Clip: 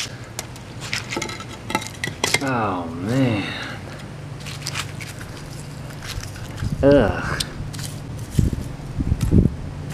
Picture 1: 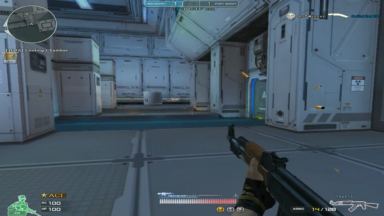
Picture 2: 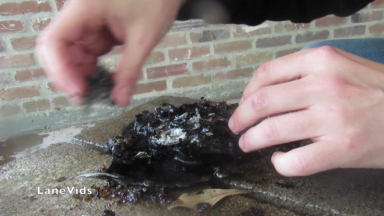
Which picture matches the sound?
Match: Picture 2